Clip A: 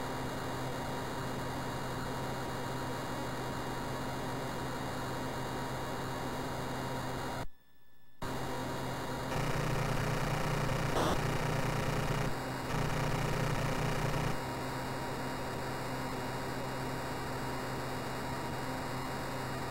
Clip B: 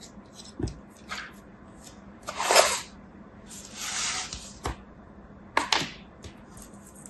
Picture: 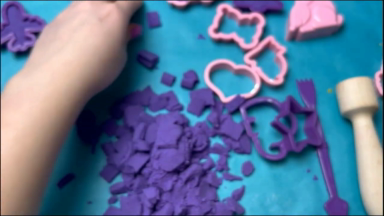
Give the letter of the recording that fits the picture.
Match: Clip B